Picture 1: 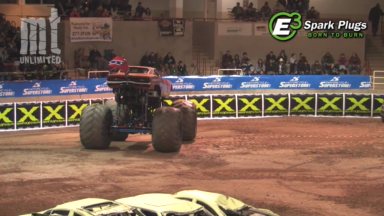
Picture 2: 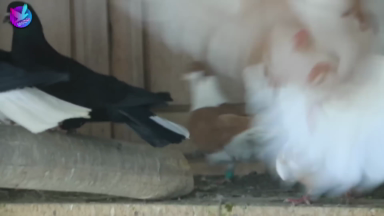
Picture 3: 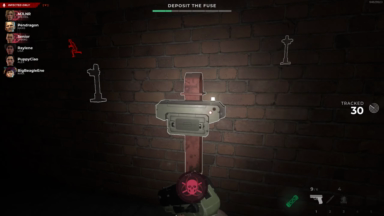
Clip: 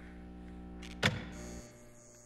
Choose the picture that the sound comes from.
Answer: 3